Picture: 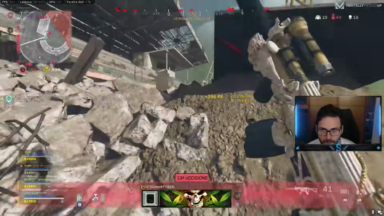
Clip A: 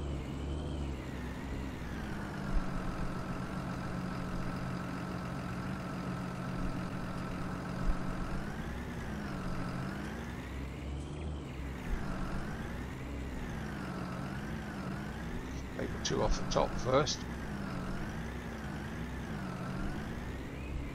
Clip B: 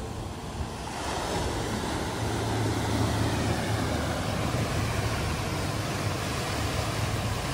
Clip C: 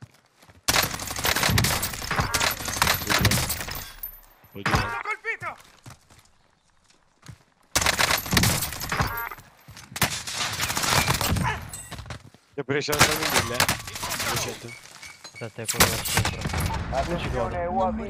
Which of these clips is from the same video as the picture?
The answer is C